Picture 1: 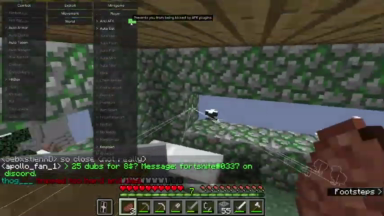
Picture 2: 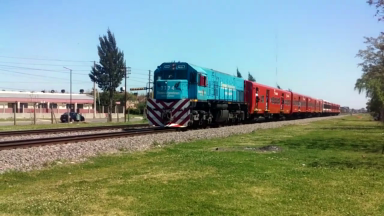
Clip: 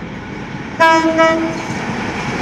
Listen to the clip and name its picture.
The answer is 2